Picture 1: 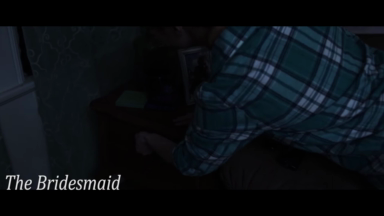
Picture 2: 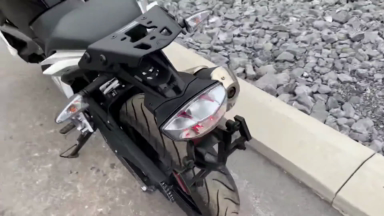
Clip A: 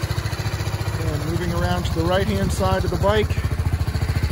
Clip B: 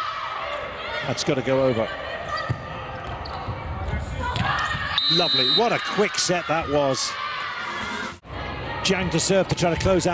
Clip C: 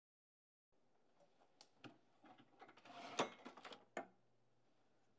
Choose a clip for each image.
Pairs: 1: C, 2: A